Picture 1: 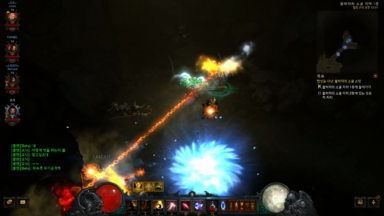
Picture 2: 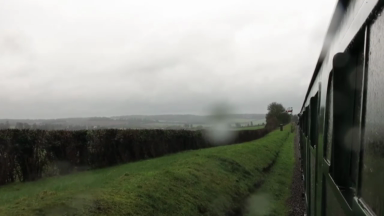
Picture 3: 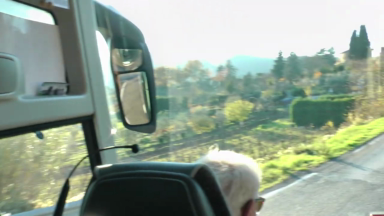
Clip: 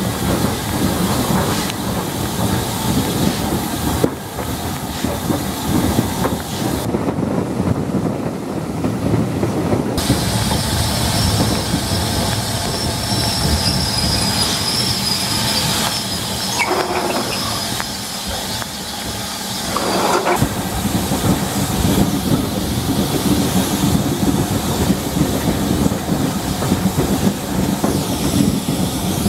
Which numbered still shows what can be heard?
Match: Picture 2